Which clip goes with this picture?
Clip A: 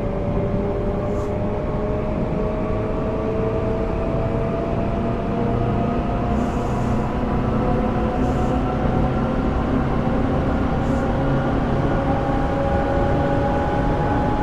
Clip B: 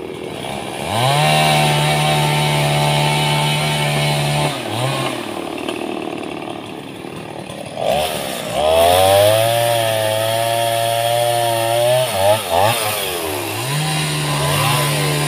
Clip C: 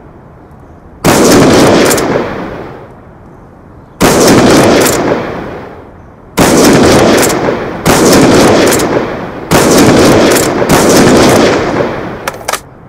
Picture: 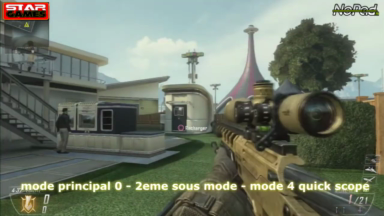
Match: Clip C